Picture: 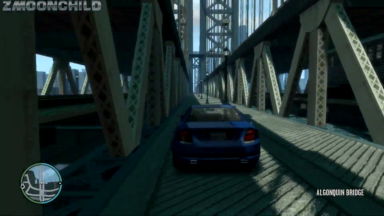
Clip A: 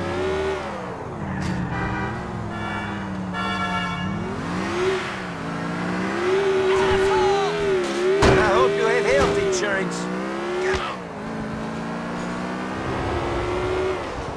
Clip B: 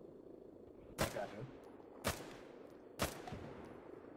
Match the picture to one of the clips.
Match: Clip A